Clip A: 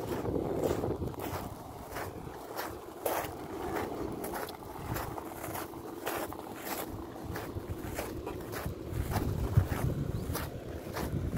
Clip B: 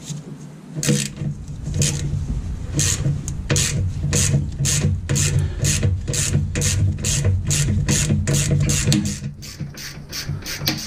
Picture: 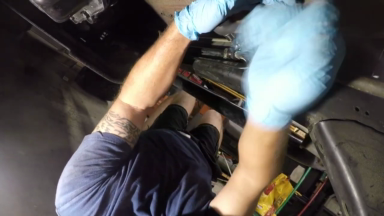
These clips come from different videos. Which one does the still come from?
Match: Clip B